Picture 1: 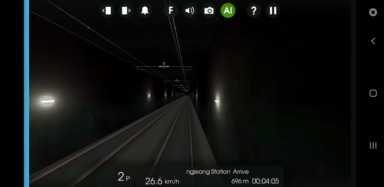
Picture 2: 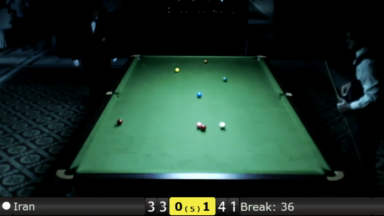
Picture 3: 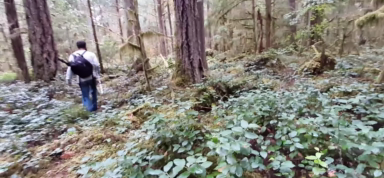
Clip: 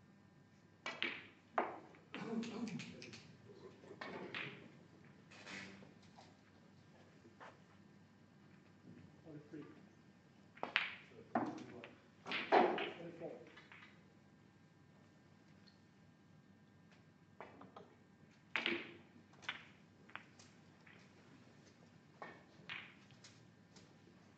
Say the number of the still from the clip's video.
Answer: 2